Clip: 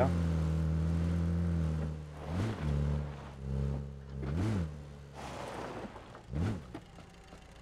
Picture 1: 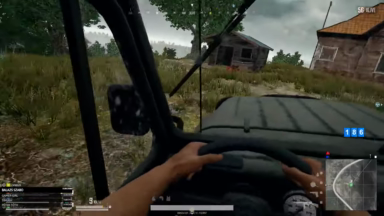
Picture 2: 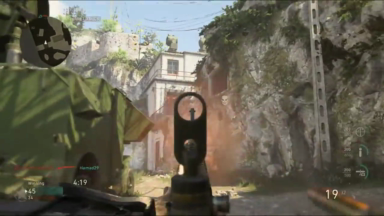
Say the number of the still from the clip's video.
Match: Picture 1